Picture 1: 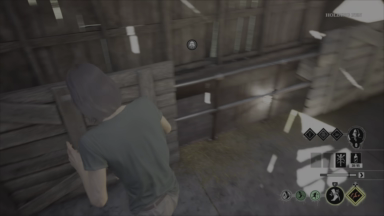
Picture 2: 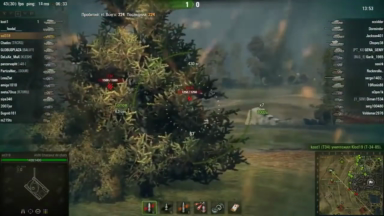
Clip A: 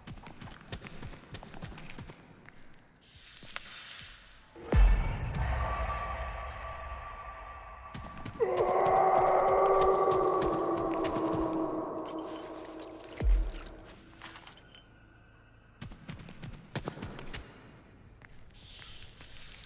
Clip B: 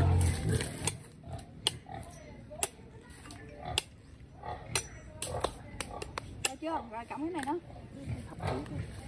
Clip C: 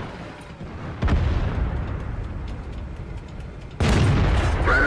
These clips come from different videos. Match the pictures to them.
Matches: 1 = A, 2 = C